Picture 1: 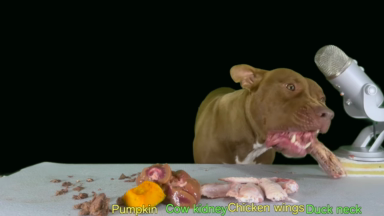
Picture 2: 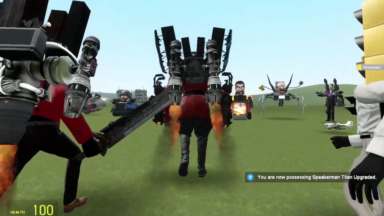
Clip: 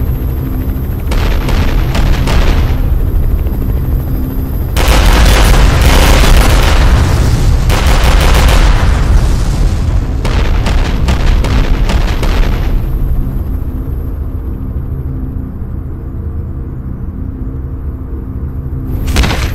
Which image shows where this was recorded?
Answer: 2